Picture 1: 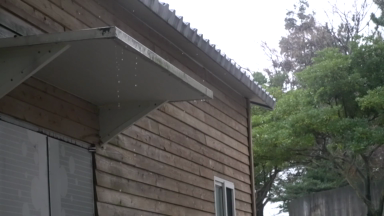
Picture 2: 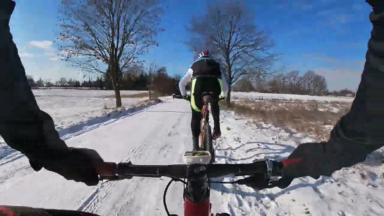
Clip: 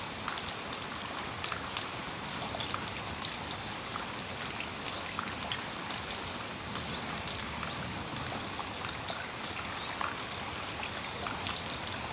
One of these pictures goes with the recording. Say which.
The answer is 1